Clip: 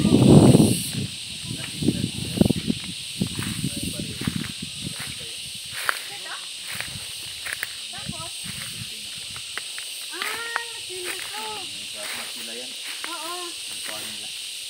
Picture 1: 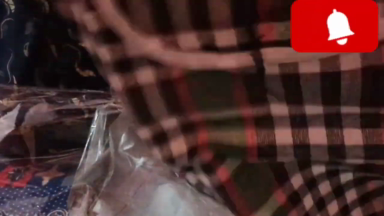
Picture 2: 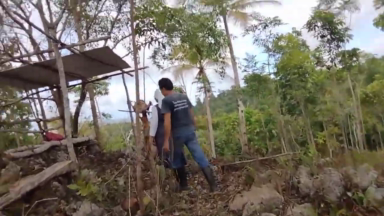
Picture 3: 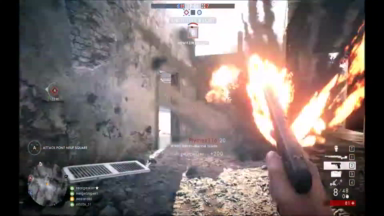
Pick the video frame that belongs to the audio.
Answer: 2